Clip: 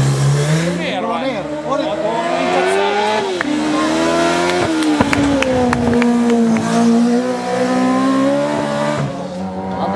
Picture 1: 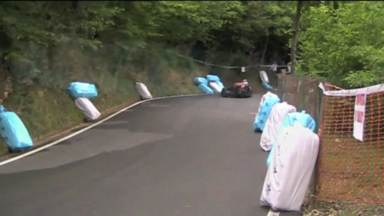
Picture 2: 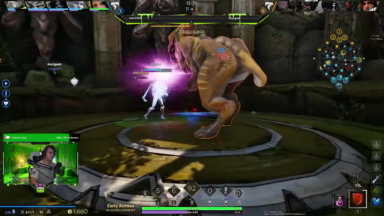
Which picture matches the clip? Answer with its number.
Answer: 1